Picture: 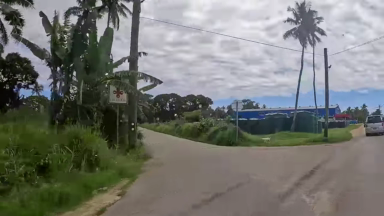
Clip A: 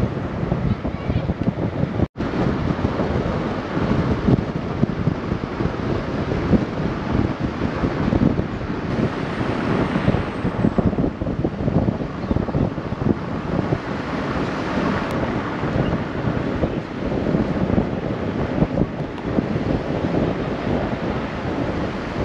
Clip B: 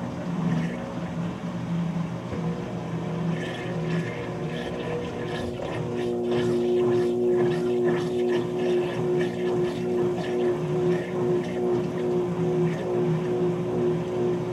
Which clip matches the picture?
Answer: A